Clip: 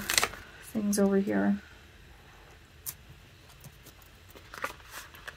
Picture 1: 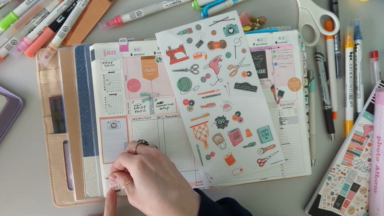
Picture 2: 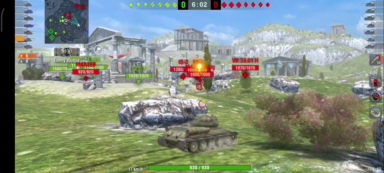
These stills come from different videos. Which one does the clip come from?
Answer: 1